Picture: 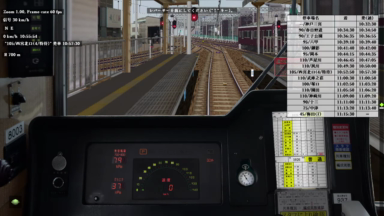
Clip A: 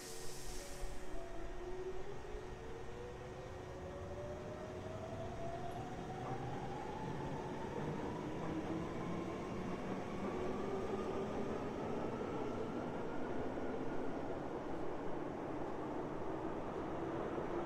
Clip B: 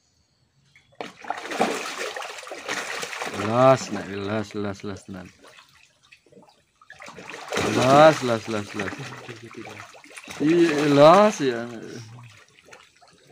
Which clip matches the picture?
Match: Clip A